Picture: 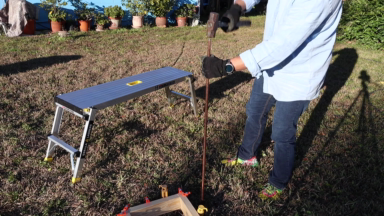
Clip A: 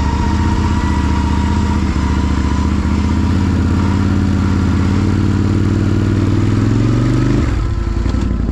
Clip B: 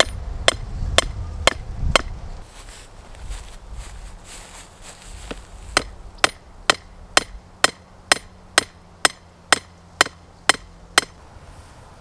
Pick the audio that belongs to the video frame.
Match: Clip B